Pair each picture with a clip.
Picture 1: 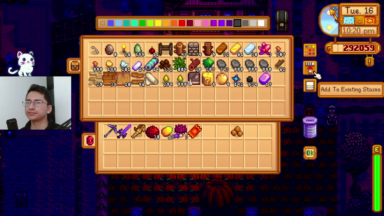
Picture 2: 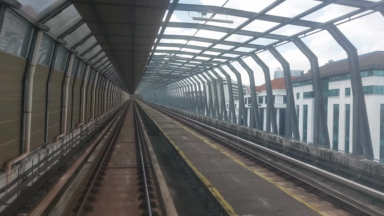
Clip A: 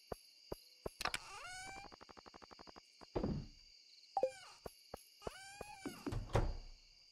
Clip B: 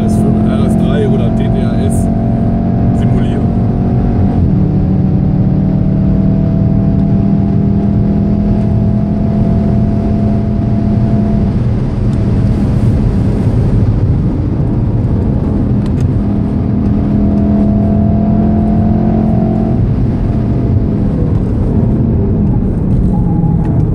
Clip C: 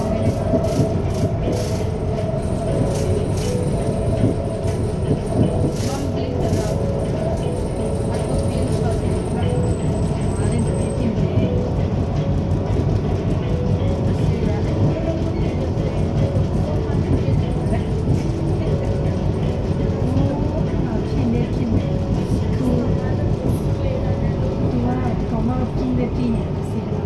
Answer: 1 A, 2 C